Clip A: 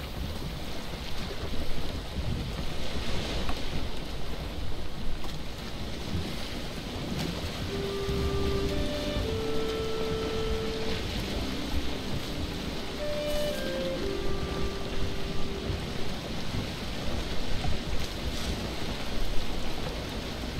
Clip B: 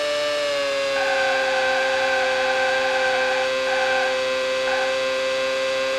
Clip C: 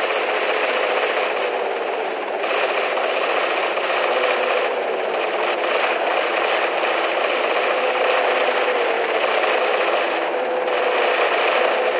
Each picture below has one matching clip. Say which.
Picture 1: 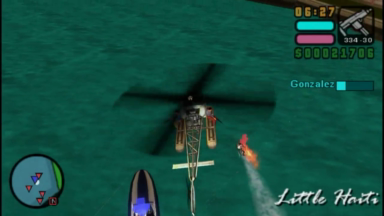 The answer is C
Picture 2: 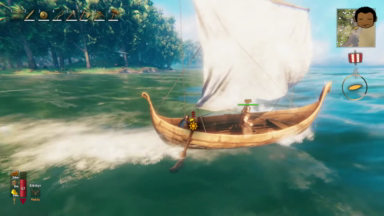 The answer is A